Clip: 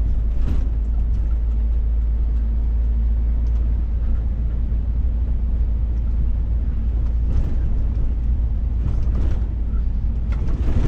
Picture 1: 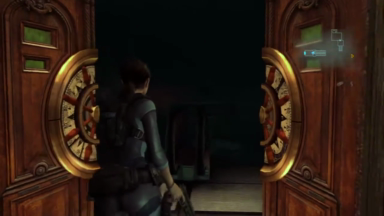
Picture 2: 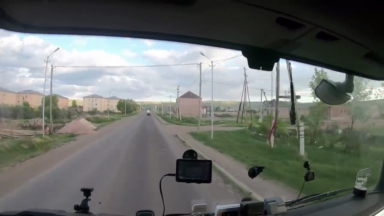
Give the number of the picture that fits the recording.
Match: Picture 2